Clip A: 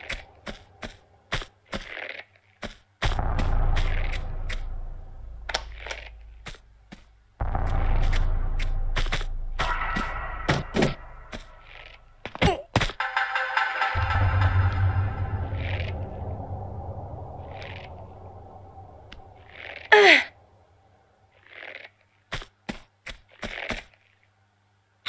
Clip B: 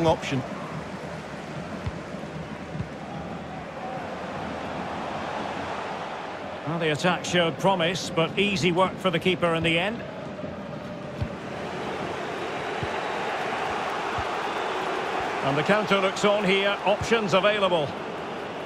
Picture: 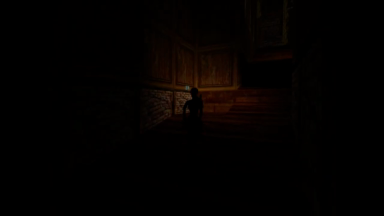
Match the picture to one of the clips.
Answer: A